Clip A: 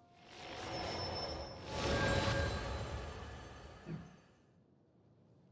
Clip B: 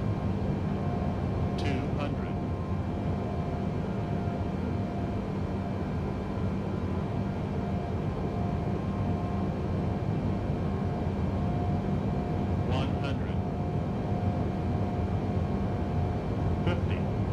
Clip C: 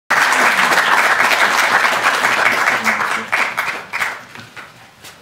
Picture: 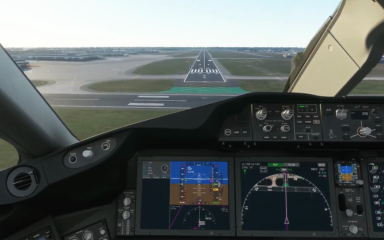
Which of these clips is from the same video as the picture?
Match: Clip B